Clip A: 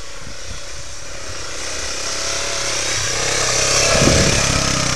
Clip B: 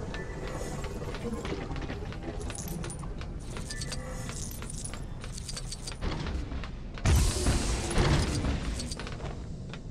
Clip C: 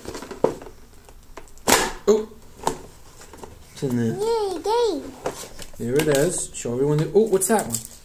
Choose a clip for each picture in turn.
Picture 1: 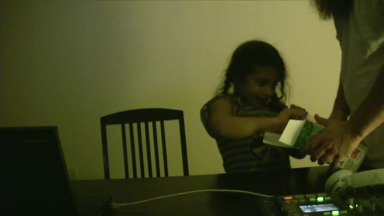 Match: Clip C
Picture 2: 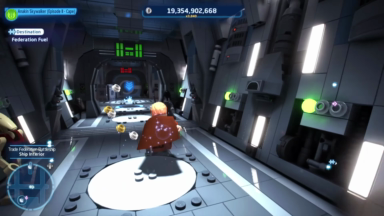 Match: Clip B